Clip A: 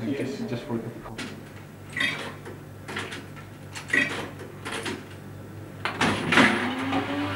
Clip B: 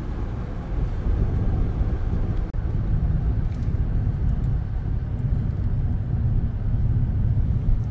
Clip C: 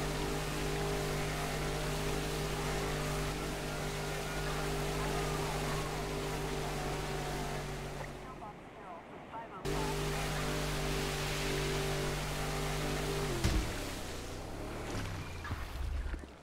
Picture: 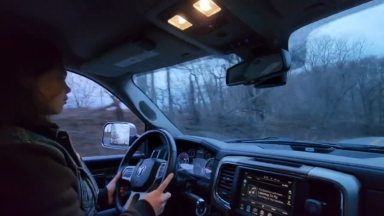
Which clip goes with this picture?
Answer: B